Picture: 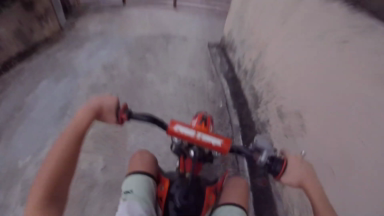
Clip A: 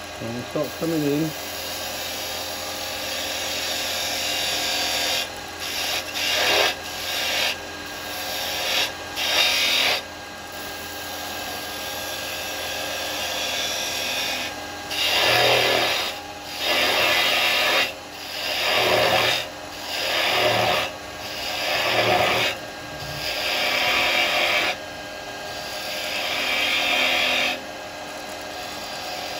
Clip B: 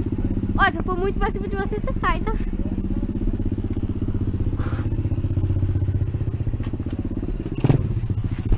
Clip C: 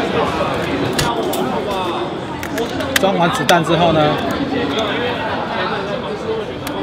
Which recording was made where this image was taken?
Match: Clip B